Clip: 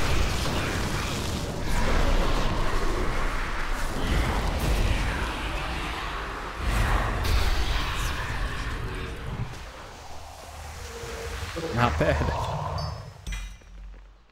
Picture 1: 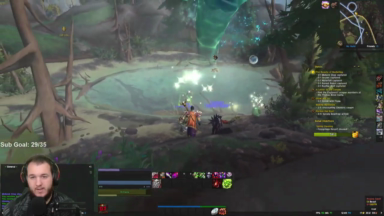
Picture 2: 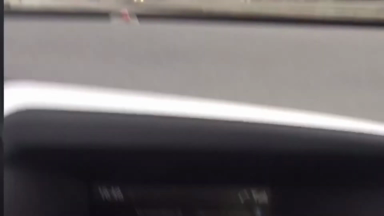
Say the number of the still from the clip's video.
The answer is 1